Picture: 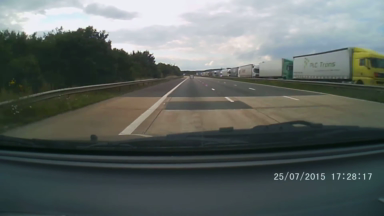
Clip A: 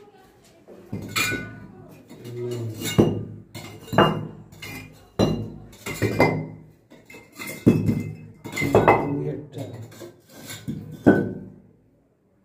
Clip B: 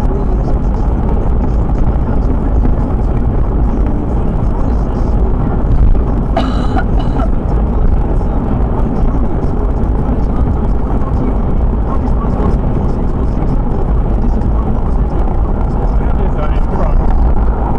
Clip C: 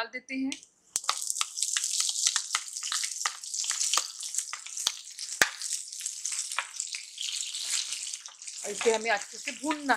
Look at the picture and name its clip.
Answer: B